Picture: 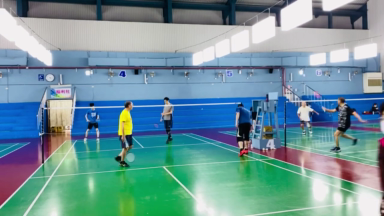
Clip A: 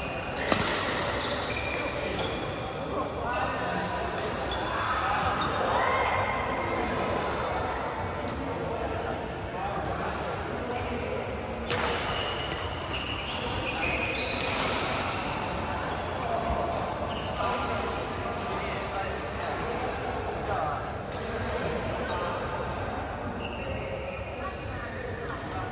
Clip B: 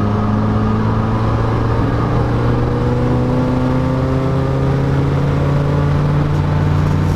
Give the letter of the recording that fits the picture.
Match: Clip A